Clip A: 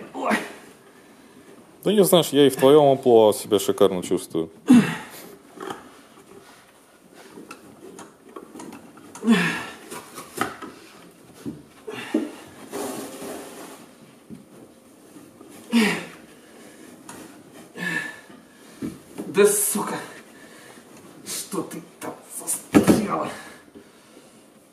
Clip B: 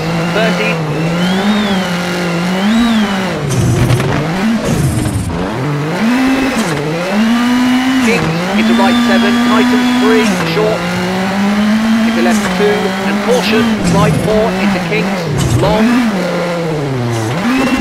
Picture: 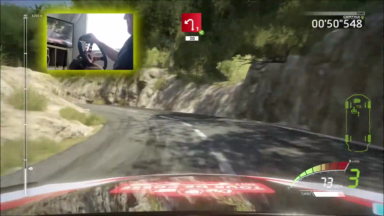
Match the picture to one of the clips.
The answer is B